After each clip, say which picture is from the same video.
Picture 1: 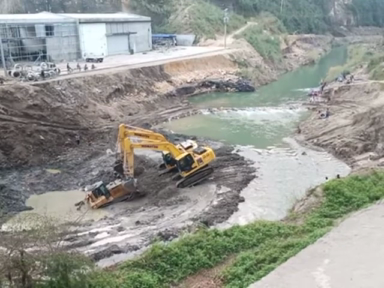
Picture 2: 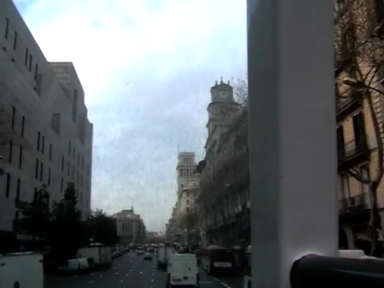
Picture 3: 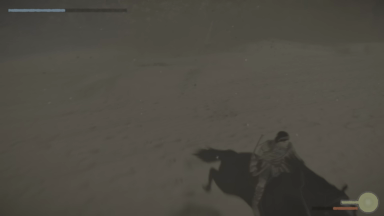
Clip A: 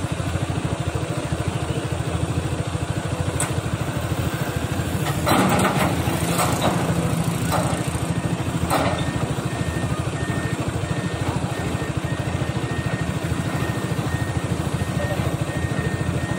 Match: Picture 1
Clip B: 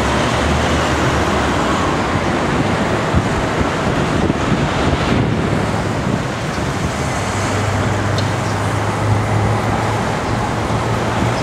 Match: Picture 2